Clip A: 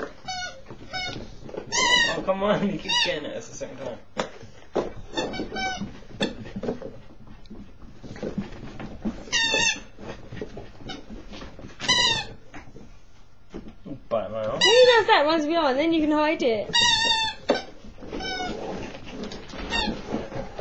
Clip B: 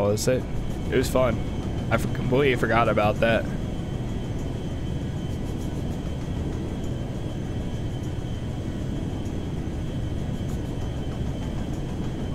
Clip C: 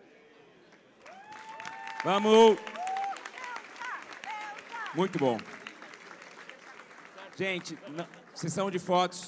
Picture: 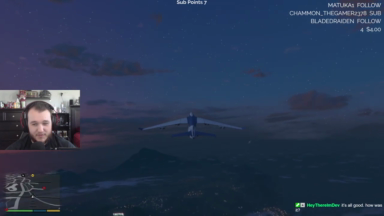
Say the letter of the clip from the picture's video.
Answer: B